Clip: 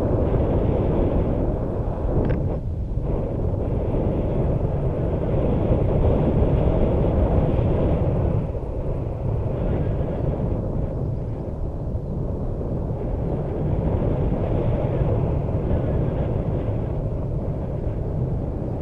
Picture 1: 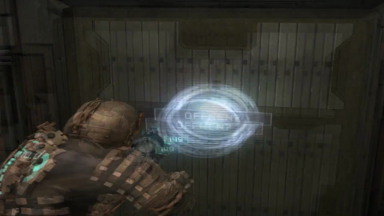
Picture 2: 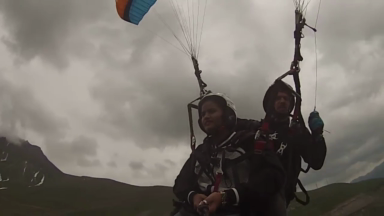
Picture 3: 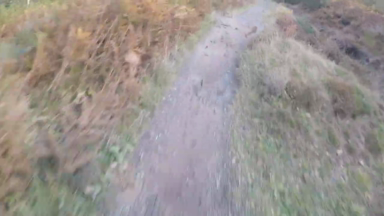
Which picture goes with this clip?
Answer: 2